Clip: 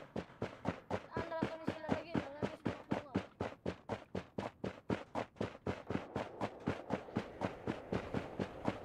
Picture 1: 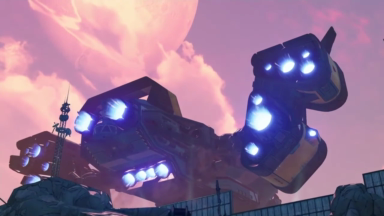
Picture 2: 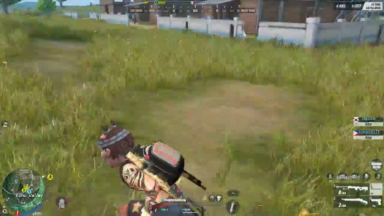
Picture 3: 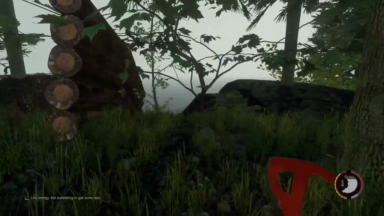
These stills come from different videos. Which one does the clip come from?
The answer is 2